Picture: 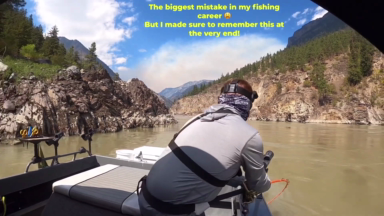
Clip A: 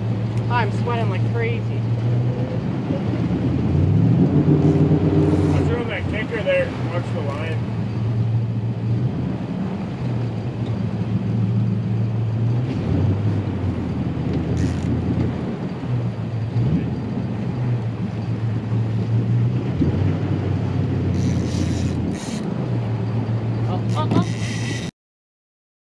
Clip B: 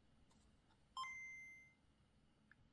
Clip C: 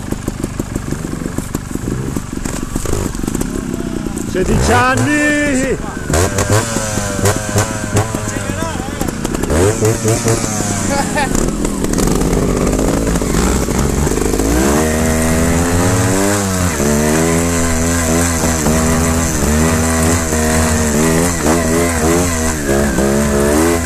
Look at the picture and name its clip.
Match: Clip A